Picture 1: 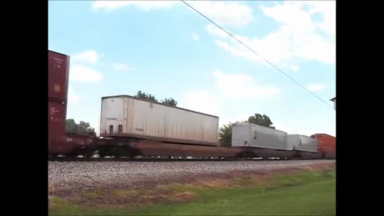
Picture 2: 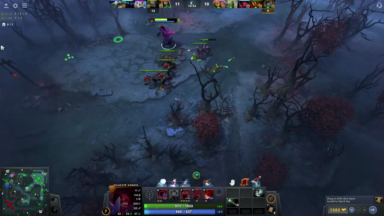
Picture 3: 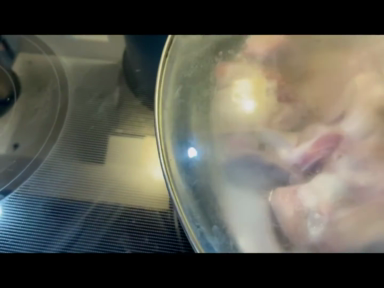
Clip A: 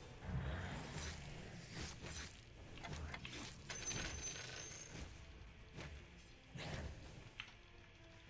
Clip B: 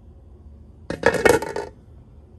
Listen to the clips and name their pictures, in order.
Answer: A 2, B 3